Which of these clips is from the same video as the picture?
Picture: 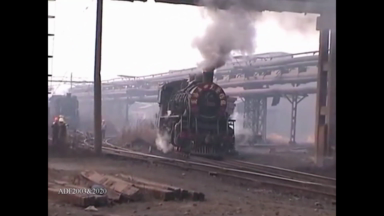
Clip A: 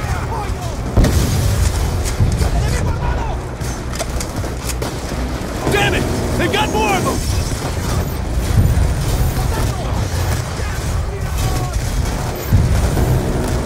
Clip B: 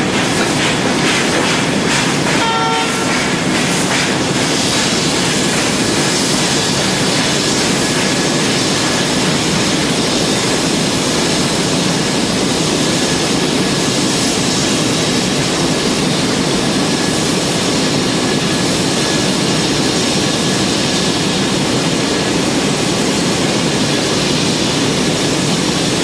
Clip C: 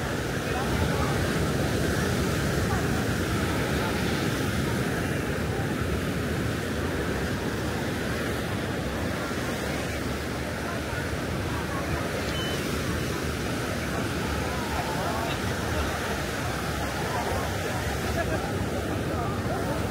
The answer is B